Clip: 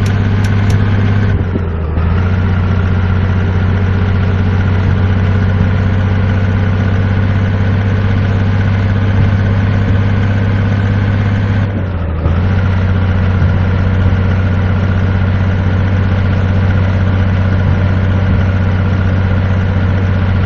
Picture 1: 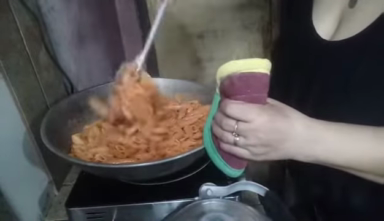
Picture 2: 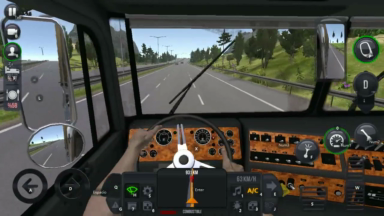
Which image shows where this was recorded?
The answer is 2